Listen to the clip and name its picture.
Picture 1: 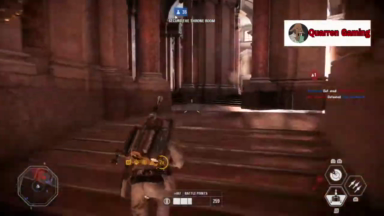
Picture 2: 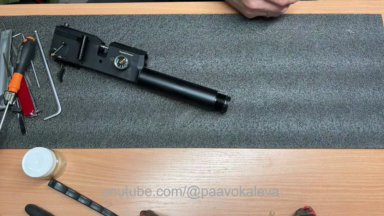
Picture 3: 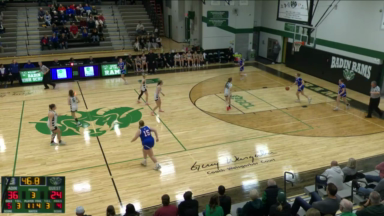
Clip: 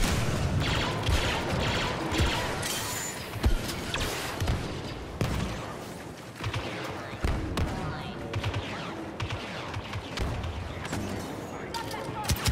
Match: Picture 1